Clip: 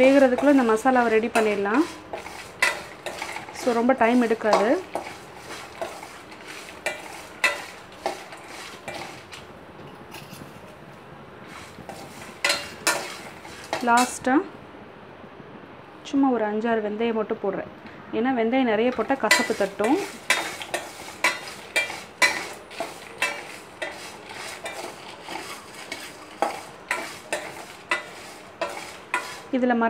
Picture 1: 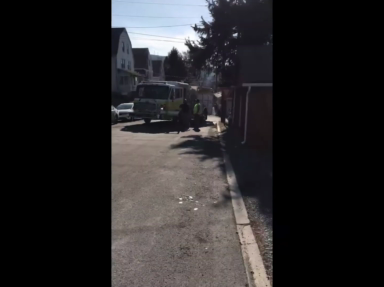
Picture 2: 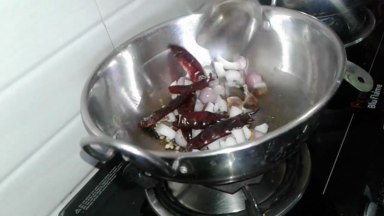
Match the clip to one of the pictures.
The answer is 2